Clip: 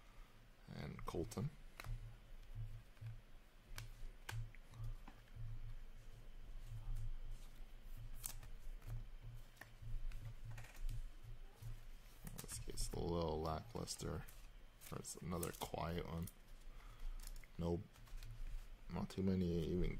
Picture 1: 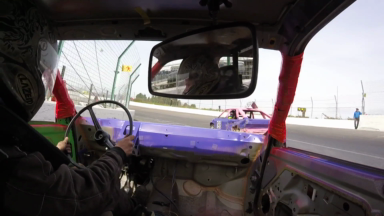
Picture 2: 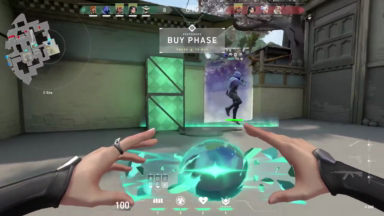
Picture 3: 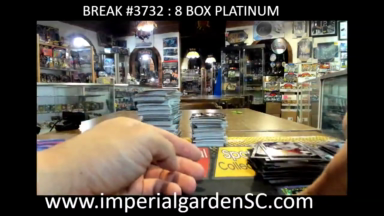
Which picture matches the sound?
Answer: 3